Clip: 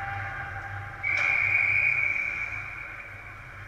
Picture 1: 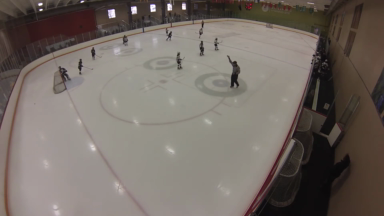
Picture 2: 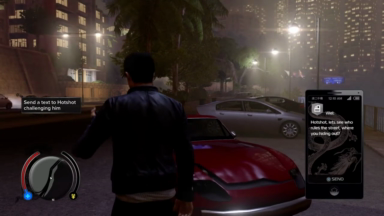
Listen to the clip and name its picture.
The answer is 1